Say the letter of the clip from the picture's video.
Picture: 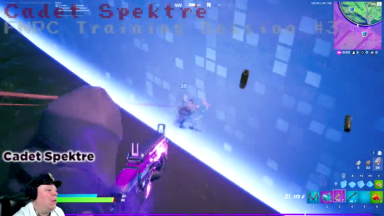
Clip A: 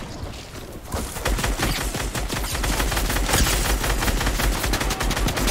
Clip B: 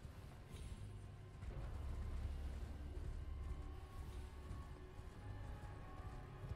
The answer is A